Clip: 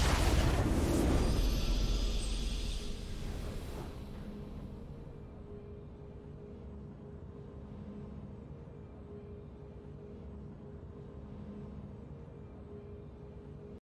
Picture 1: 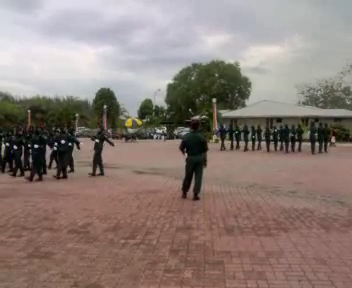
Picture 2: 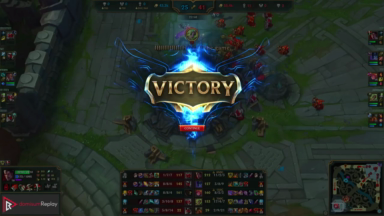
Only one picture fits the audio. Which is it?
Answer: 2